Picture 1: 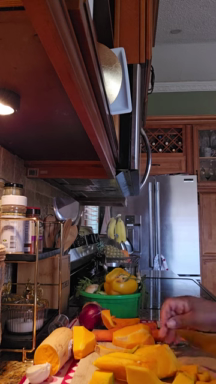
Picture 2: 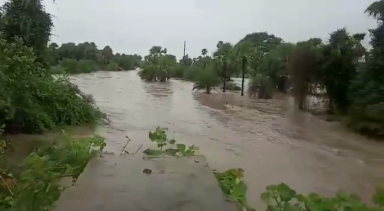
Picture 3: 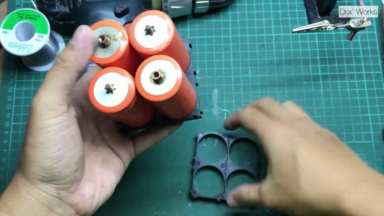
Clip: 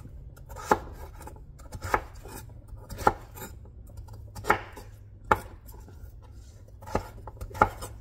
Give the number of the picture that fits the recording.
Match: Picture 1